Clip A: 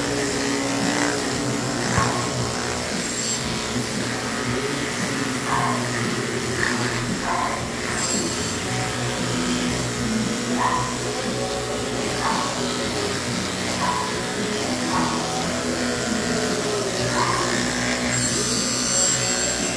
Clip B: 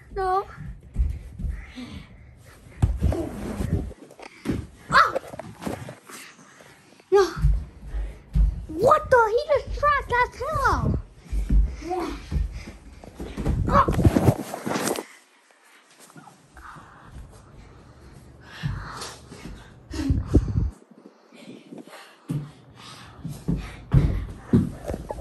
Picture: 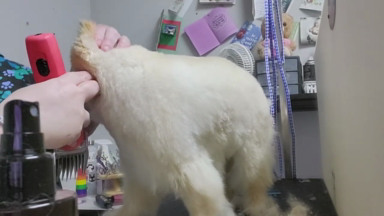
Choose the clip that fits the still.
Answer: A